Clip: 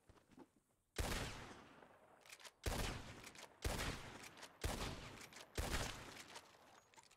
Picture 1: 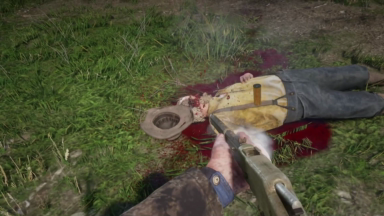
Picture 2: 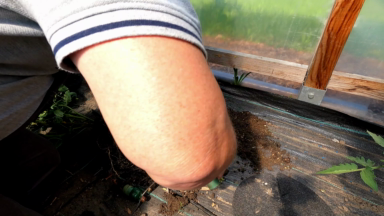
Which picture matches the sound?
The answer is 1